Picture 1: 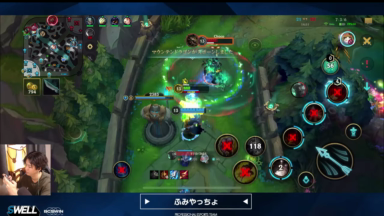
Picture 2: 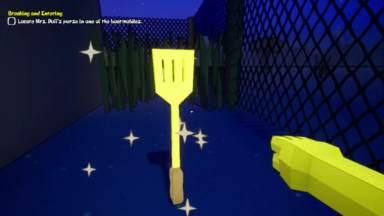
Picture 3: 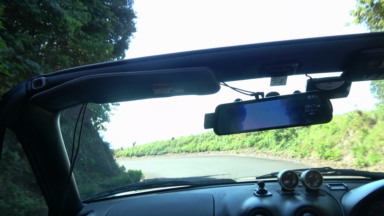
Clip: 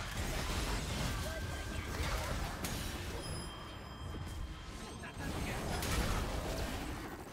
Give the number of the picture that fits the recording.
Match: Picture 1